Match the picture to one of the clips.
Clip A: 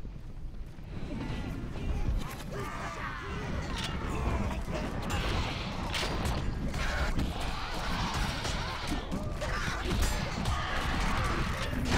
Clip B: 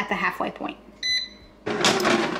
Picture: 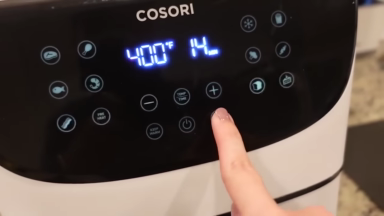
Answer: B